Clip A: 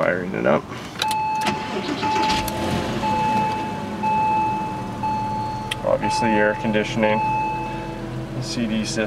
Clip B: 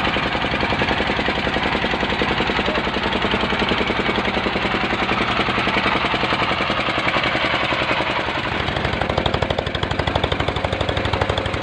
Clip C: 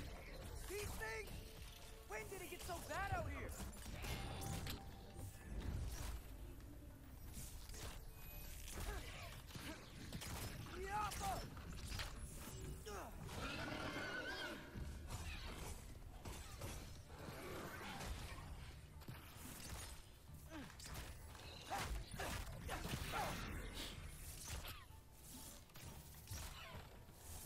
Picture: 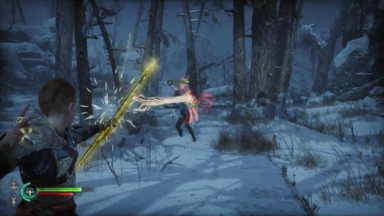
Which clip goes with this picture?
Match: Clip C